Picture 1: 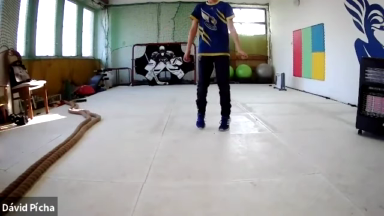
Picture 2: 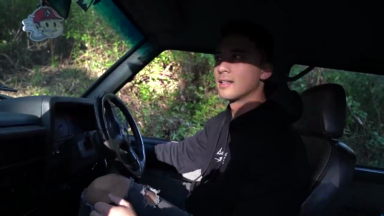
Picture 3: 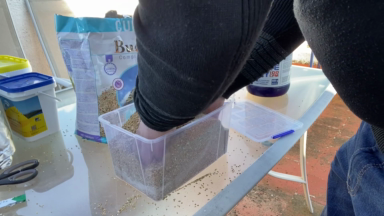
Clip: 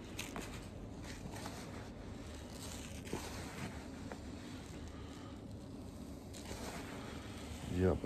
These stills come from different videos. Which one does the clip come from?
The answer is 3